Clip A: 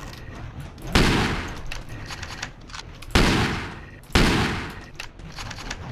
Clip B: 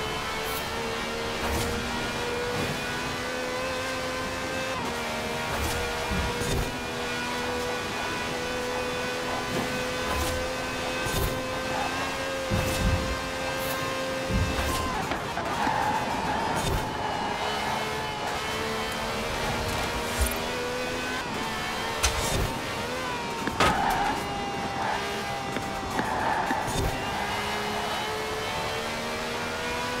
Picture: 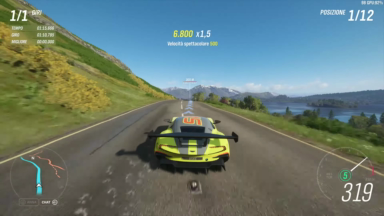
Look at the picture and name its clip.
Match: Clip B